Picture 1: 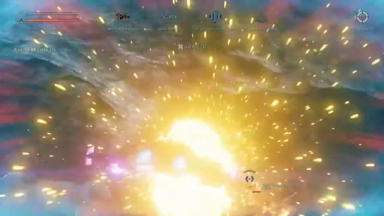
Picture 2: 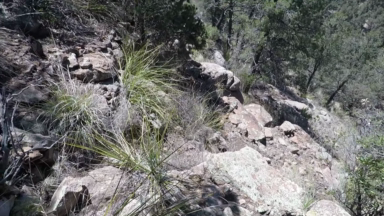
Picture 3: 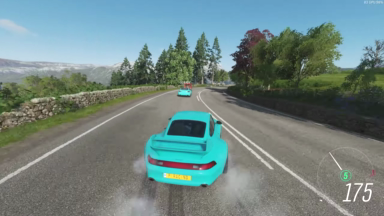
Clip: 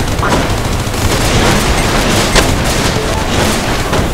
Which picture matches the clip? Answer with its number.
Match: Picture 1